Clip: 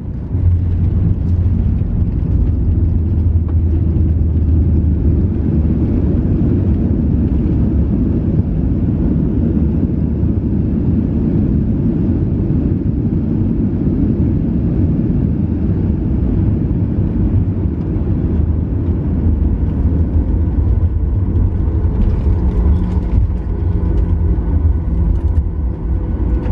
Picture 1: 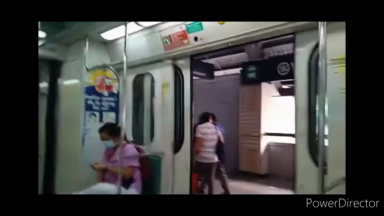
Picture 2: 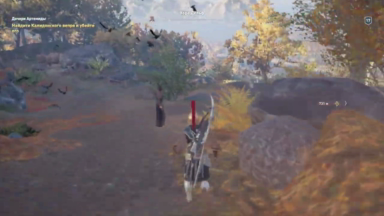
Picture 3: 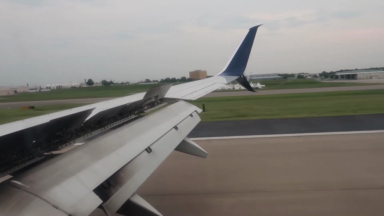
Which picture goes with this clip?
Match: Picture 3